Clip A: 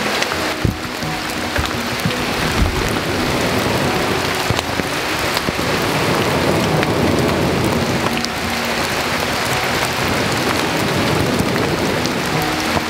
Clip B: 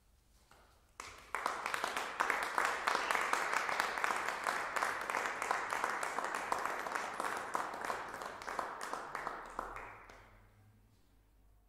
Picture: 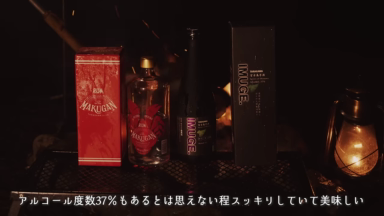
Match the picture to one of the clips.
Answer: A